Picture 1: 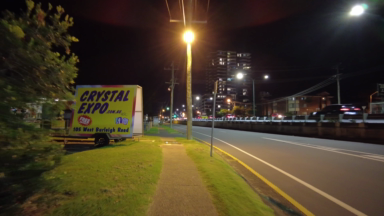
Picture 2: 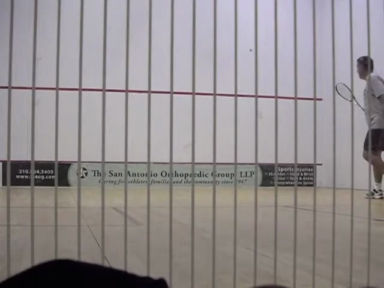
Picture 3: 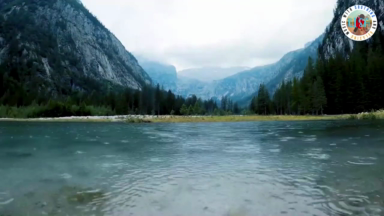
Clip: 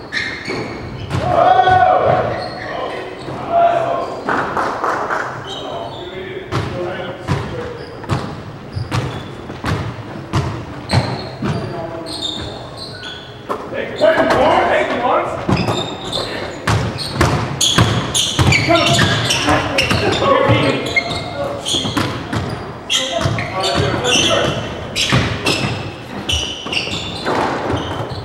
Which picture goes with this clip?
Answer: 2